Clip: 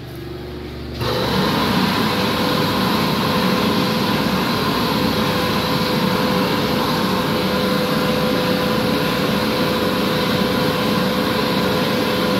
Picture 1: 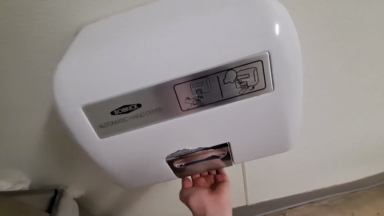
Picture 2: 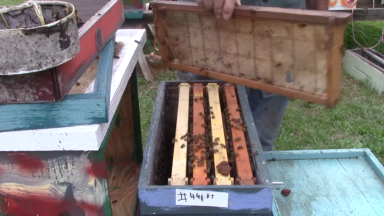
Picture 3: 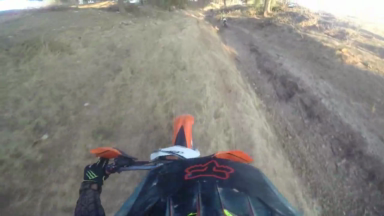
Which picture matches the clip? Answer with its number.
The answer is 1